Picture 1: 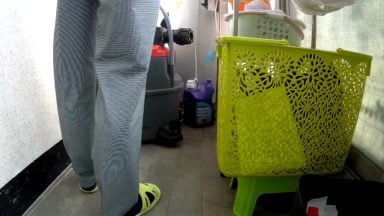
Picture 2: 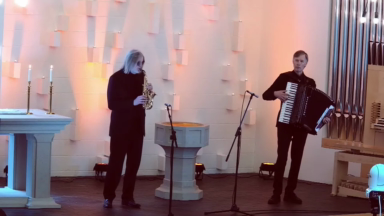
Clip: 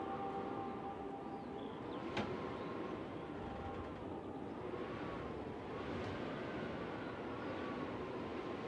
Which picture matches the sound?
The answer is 2